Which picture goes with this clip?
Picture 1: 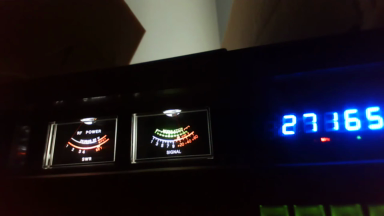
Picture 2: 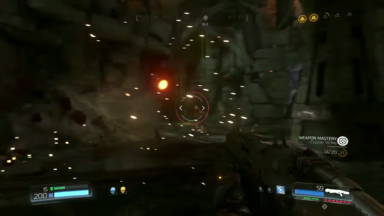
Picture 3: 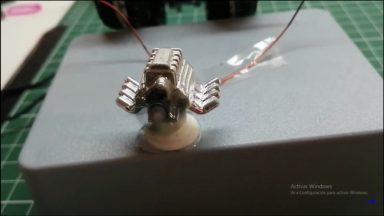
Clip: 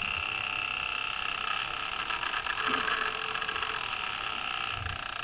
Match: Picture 3